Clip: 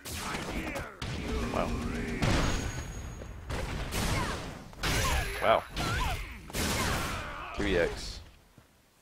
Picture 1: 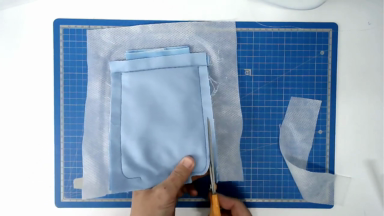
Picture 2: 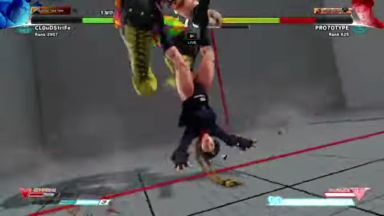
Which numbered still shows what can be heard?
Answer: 2